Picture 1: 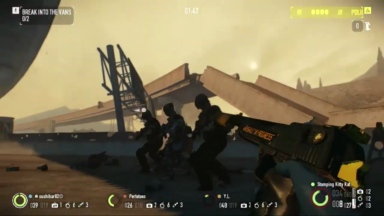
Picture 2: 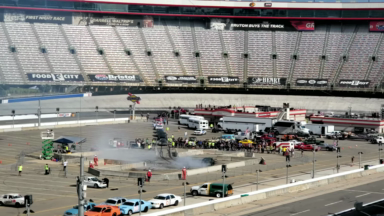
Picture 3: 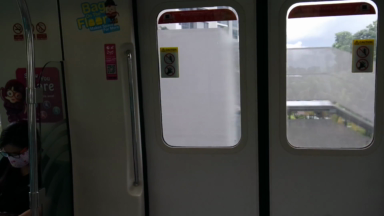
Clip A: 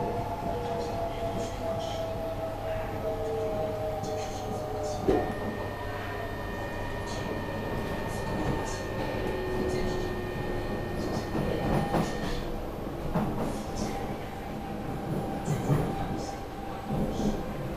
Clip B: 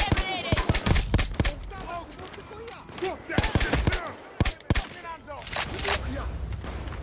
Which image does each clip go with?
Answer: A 3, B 1